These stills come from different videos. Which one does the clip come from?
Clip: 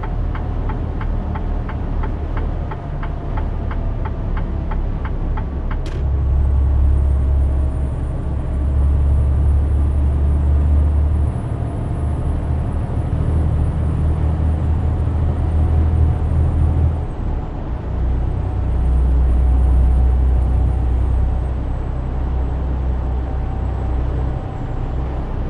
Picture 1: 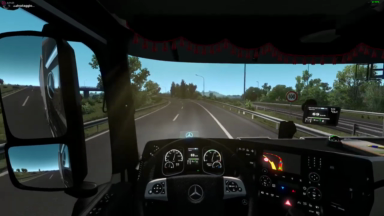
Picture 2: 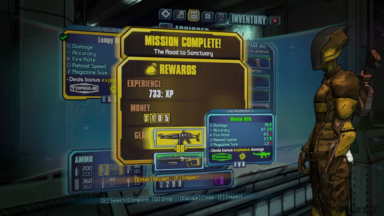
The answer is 1